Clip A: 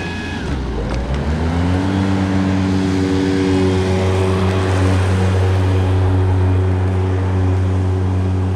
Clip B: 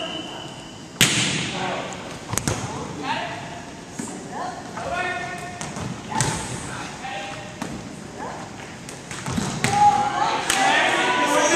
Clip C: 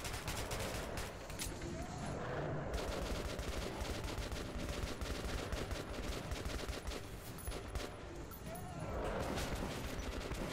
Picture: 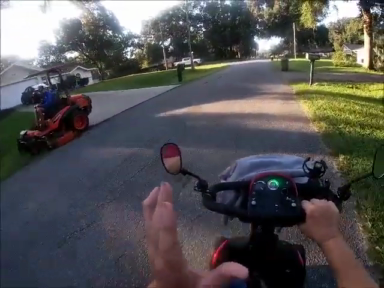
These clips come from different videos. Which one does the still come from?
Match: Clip A